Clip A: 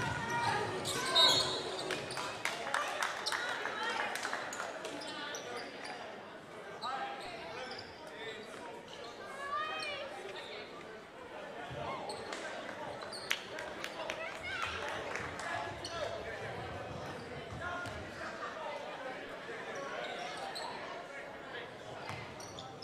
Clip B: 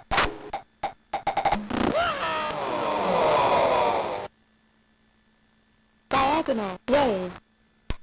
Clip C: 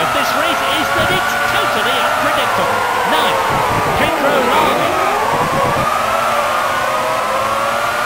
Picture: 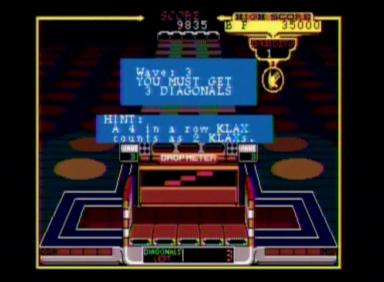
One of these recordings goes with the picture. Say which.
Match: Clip B